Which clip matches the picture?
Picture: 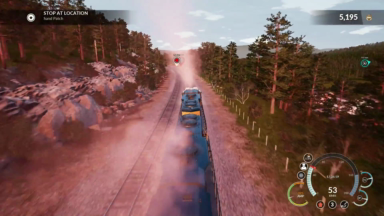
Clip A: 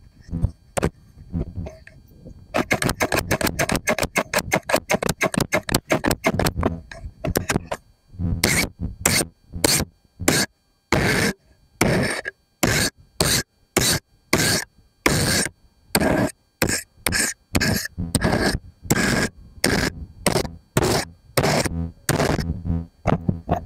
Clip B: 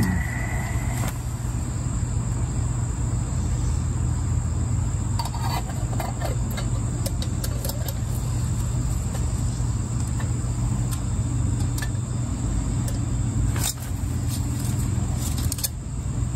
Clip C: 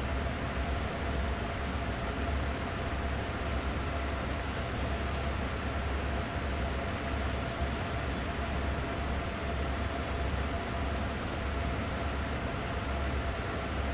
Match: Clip C